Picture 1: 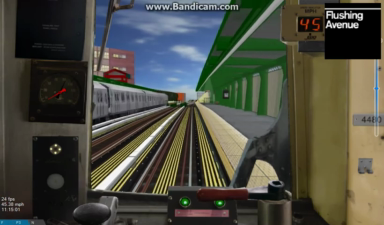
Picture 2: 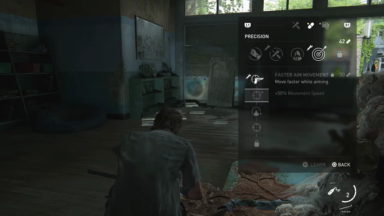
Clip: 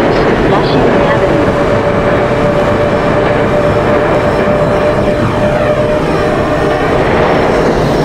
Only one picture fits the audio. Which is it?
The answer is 1